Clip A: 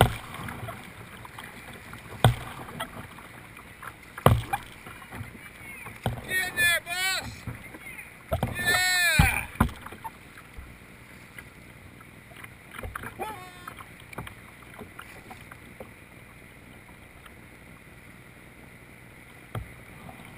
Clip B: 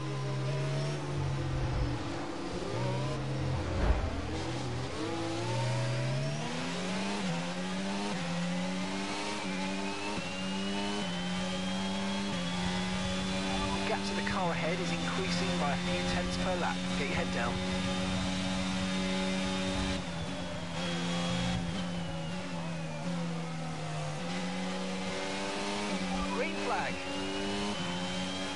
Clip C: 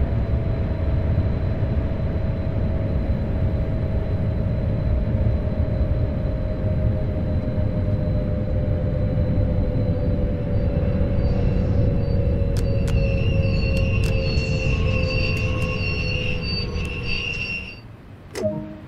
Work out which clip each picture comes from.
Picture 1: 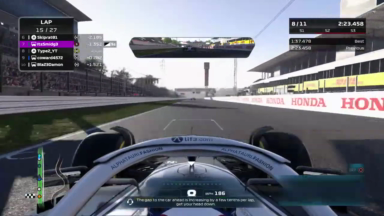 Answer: B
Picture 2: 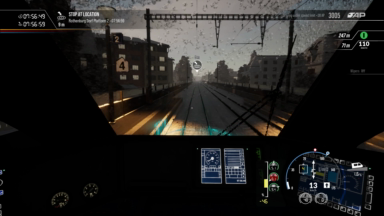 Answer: C